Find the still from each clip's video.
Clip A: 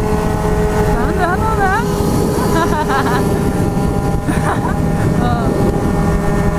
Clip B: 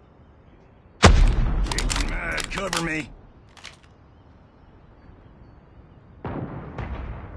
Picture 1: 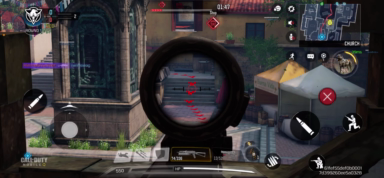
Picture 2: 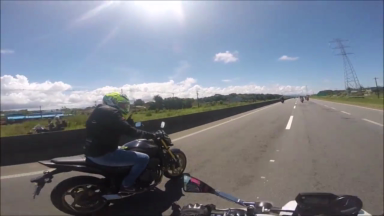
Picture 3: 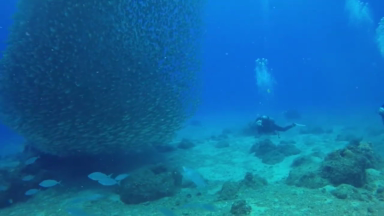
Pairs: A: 2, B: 1